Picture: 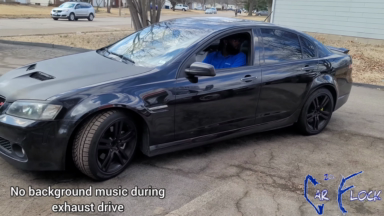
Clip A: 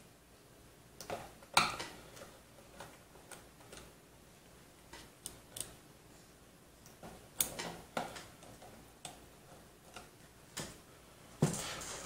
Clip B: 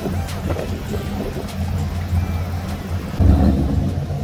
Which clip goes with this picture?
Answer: B